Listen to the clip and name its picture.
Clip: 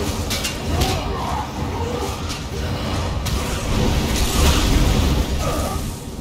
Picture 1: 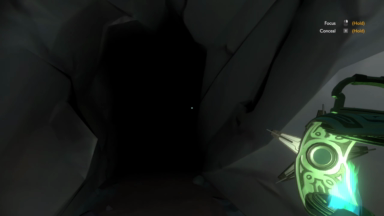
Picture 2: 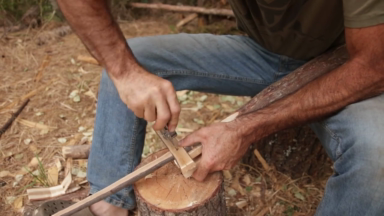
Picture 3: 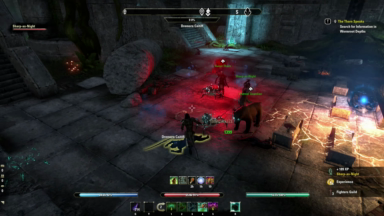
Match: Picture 3